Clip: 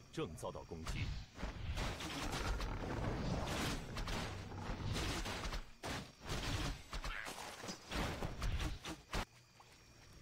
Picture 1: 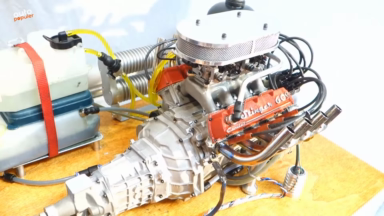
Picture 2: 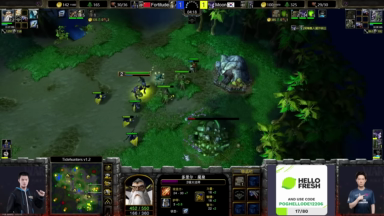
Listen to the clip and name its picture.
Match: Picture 2